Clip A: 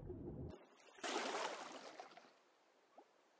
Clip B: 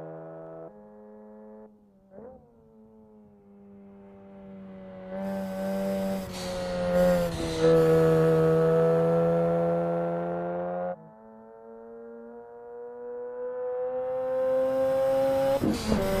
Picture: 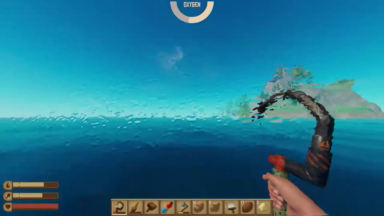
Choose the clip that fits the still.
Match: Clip A